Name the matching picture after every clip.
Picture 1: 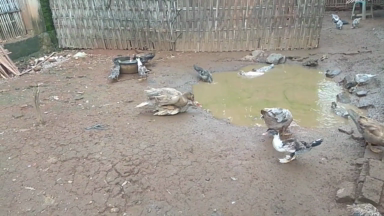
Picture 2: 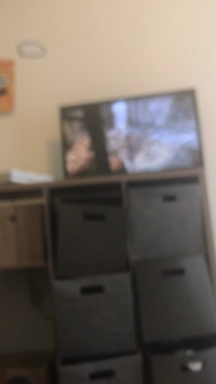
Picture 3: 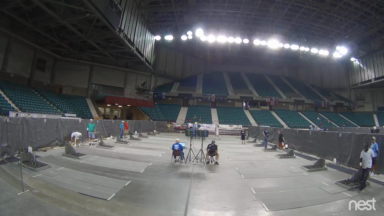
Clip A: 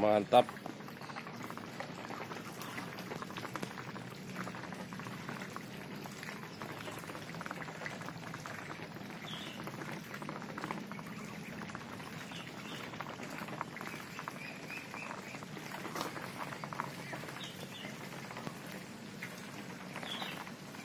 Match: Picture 1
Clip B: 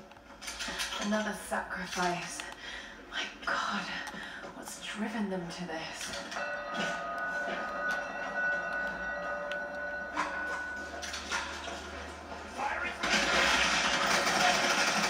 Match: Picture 2